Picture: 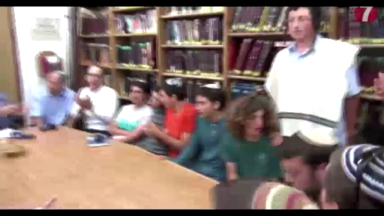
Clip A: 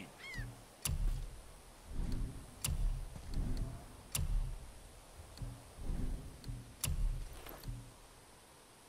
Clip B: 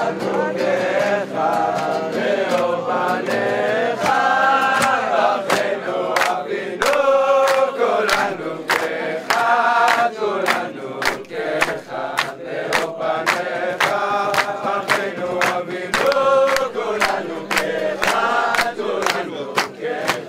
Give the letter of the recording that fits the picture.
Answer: B